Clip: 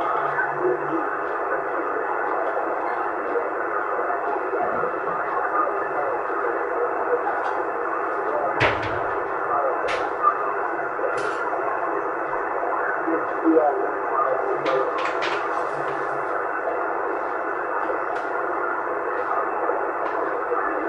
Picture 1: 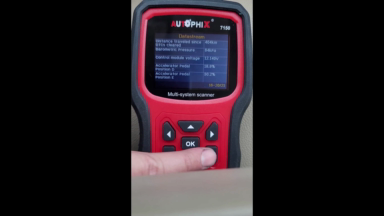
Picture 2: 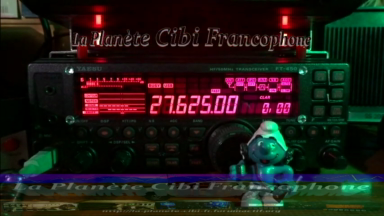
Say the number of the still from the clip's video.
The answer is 2